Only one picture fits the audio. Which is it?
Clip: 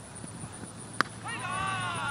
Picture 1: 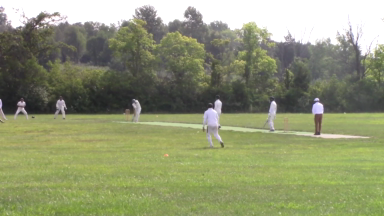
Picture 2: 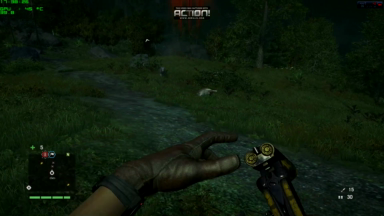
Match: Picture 1